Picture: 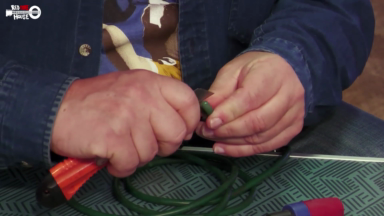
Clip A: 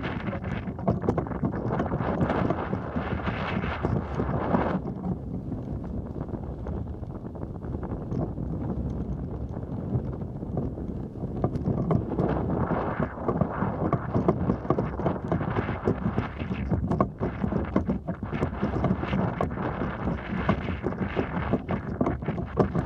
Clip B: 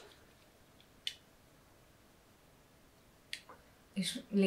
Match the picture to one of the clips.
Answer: B